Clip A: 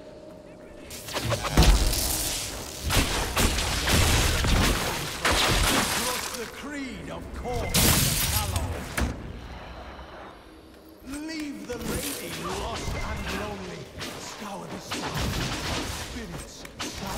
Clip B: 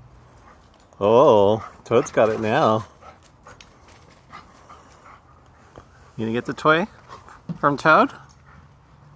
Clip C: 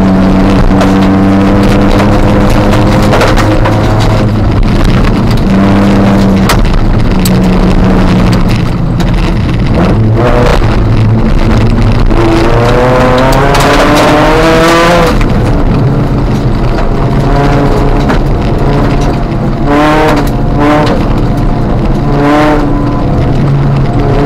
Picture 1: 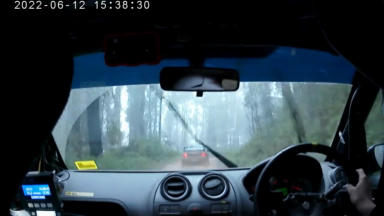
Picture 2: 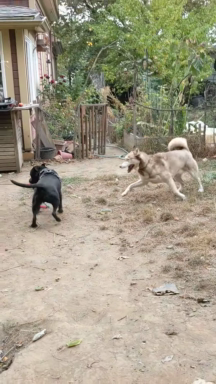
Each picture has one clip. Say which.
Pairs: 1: C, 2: B